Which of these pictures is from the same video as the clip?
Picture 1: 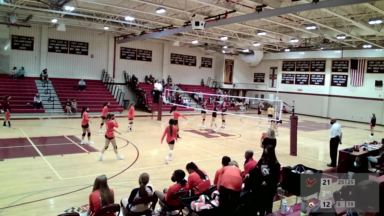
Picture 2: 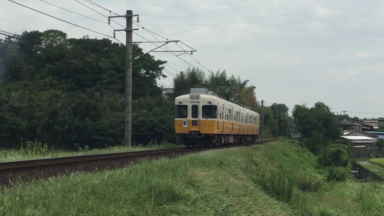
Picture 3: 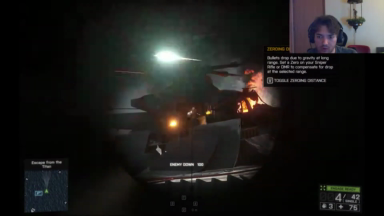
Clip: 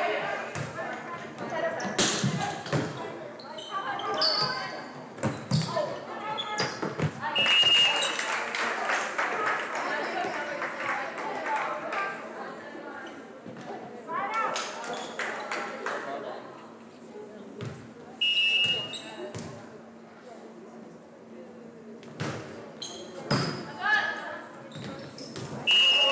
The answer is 1